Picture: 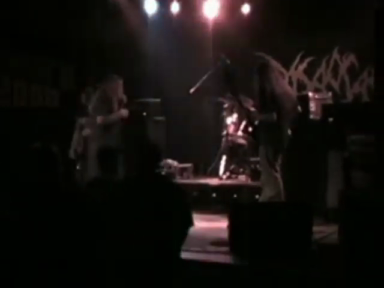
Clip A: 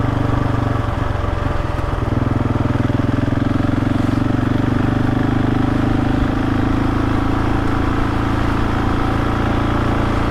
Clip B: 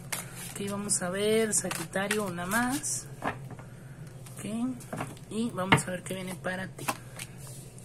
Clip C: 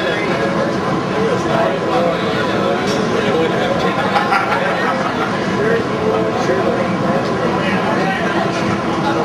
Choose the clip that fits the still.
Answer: C